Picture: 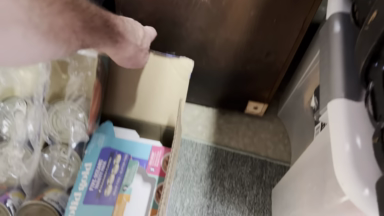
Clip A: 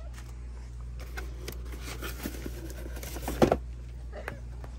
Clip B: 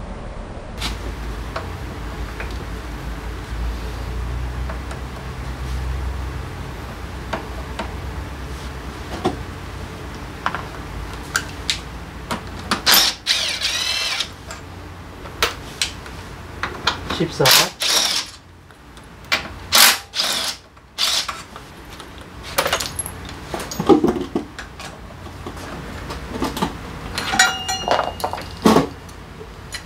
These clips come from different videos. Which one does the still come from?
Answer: A